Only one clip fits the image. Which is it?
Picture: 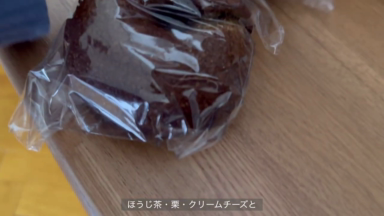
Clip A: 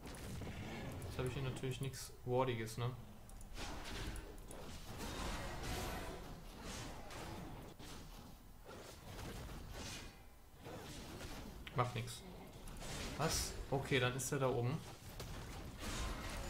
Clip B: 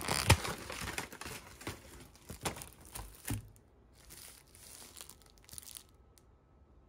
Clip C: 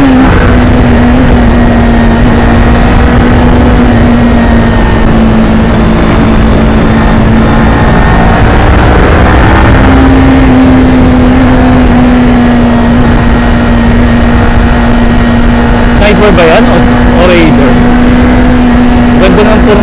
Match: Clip B